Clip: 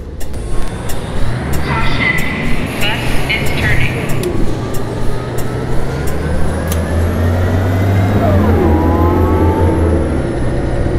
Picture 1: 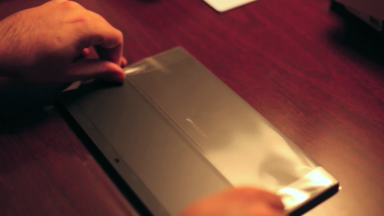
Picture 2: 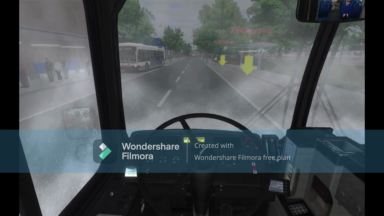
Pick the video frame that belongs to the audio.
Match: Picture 2